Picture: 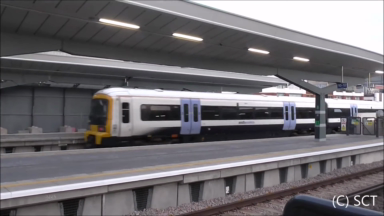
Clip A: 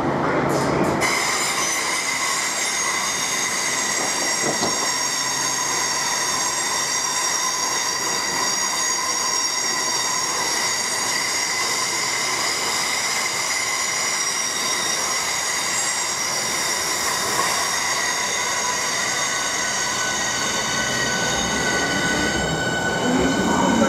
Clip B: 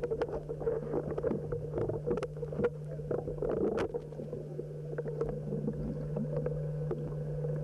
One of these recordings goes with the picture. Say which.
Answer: A